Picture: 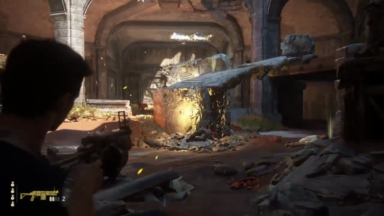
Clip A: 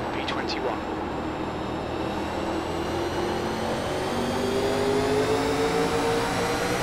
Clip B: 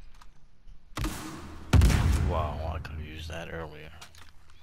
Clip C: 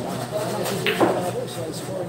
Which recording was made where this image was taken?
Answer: B